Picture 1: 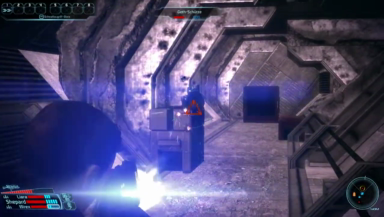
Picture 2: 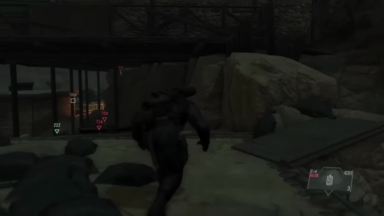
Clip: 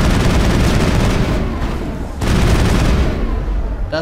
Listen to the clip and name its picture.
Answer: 1